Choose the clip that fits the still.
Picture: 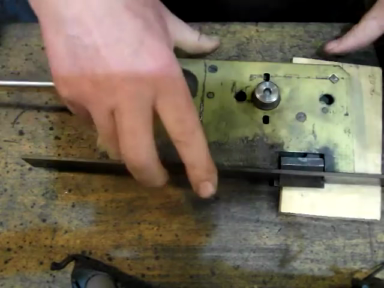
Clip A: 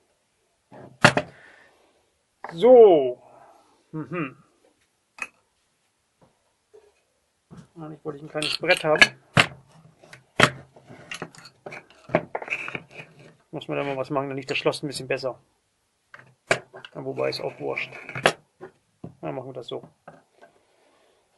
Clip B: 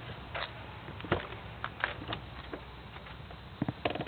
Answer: A